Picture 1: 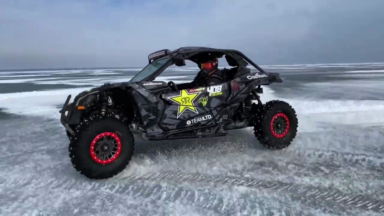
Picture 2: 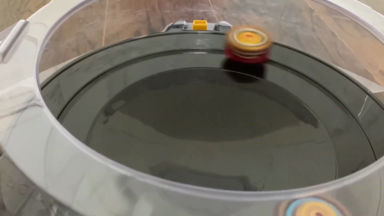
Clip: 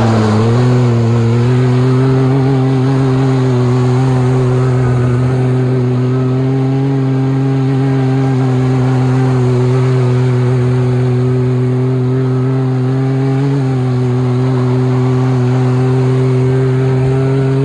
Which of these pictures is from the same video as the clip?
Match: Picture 1